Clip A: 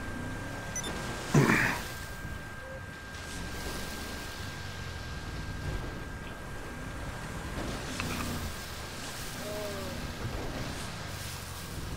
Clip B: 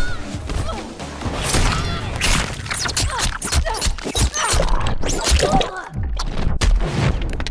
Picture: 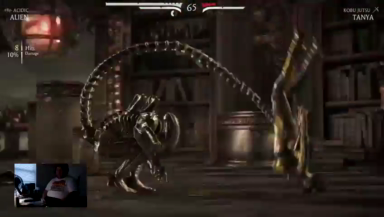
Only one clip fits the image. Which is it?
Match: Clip B